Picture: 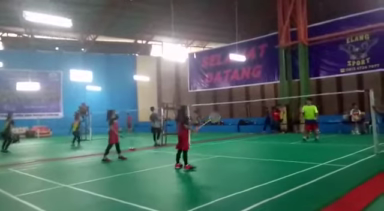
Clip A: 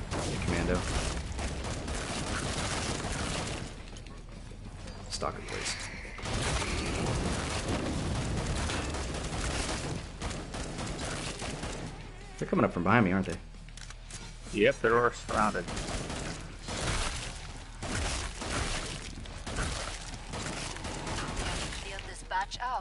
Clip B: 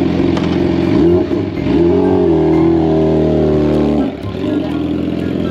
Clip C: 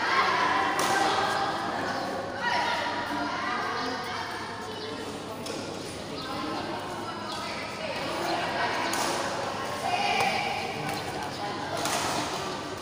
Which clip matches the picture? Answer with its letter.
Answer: C